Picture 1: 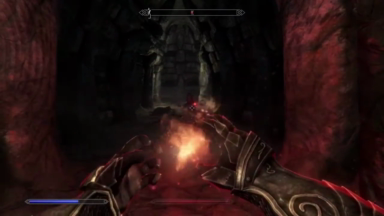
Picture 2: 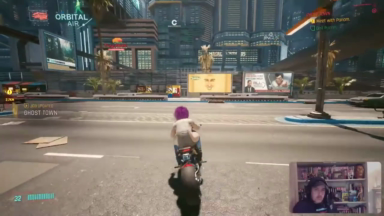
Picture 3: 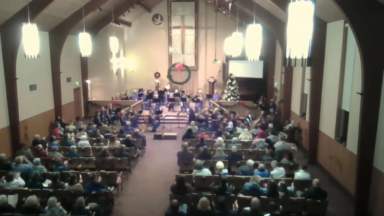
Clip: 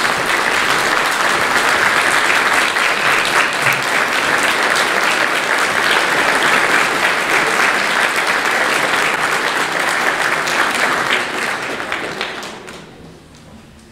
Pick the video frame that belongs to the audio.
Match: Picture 3